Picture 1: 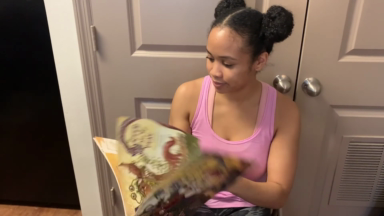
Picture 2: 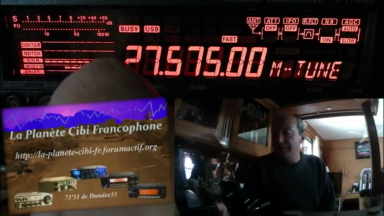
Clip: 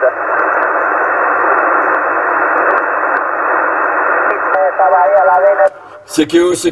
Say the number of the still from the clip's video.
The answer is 2